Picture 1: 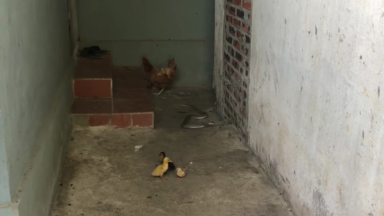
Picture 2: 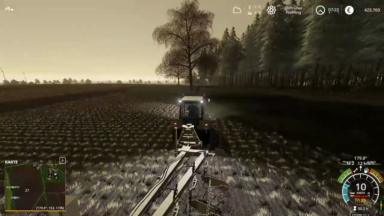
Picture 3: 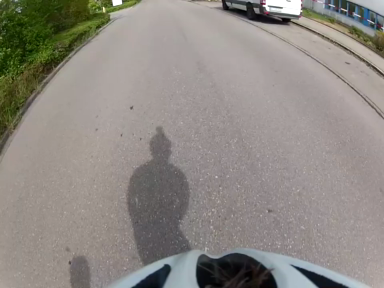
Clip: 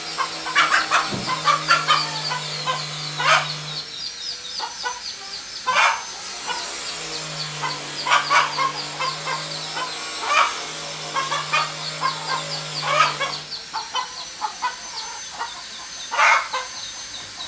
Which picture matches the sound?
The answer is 1